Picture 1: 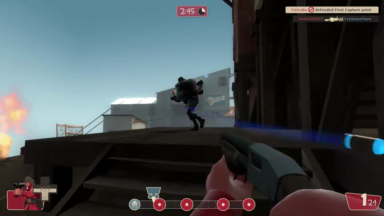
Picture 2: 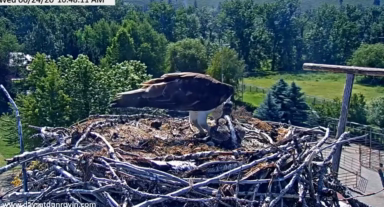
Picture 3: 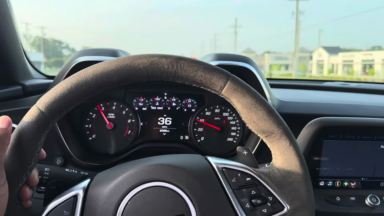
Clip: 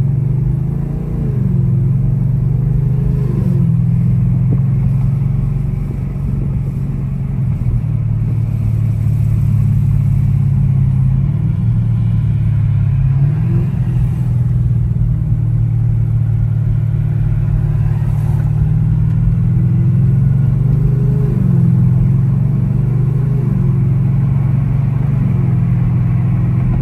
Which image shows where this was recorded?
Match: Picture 3